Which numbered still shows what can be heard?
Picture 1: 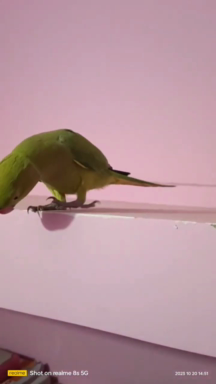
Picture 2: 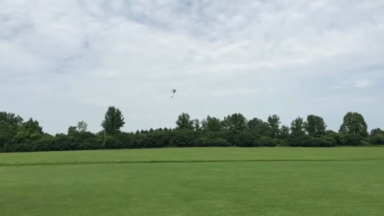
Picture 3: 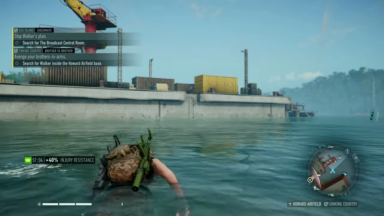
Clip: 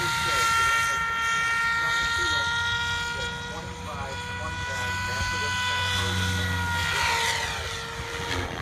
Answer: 2